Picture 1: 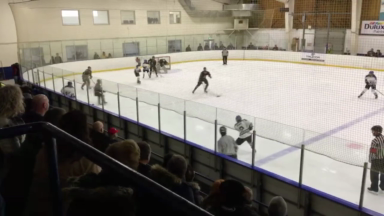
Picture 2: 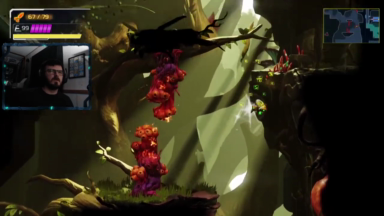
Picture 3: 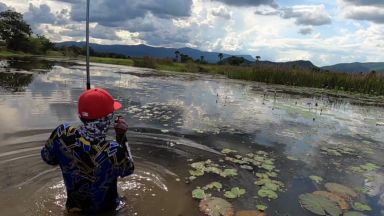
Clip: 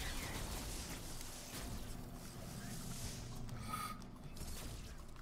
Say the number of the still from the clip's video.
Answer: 2